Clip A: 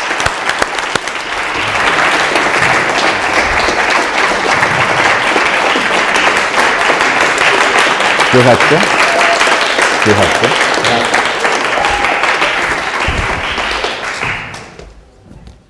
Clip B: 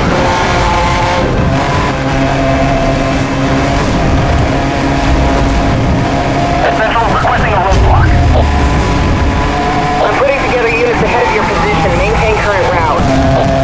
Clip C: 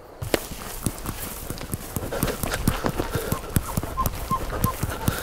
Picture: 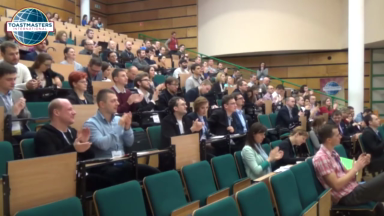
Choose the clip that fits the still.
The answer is A